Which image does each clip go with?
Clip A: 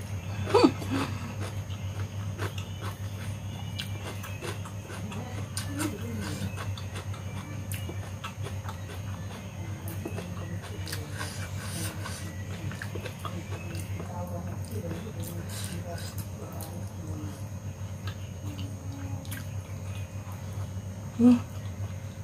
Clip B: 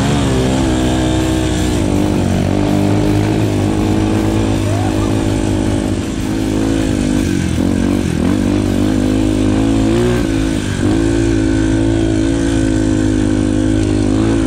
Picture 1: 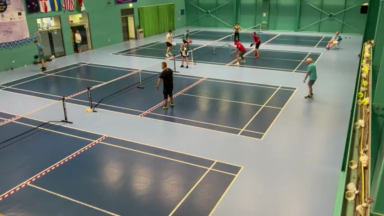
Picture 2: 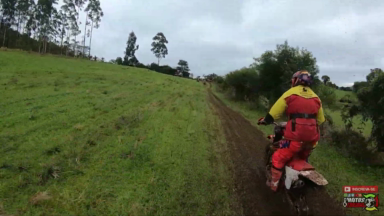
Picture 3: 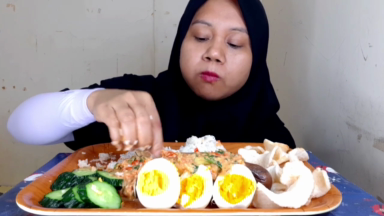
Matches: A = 3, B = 2